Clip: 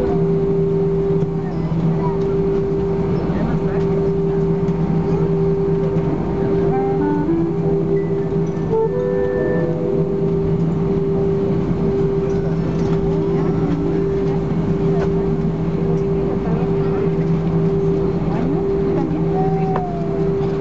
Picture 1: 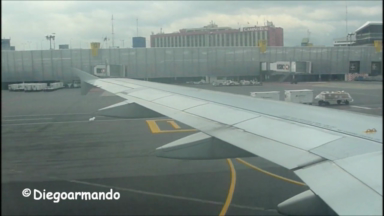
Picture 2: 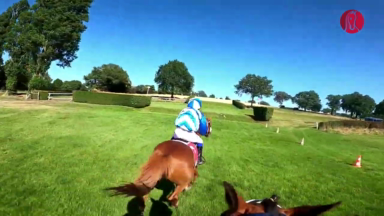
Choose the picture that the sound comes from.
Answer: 1